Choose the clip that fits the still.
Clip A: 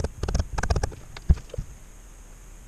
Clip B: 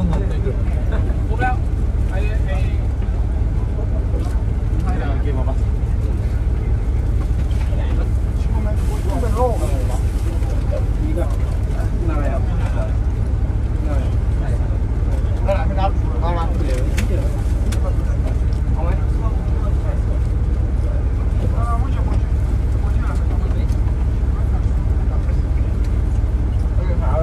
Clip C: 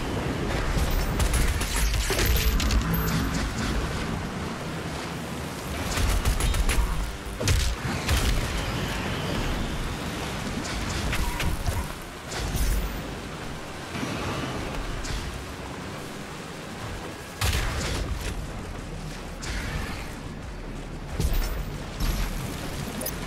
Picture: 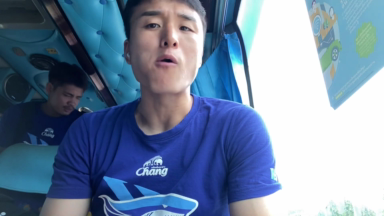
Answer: B